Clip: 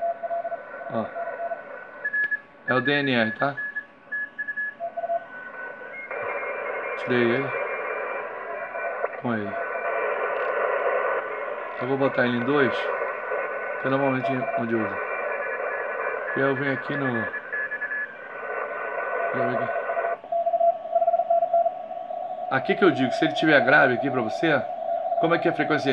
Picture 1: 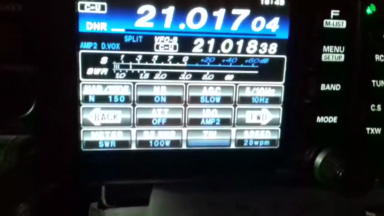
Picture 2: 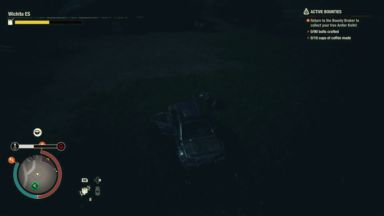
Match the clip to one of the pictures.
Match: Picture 1